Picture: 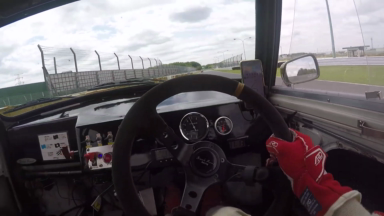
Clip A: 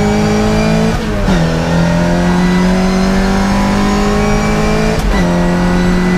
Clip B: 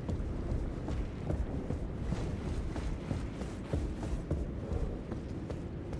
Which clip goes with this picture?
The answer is A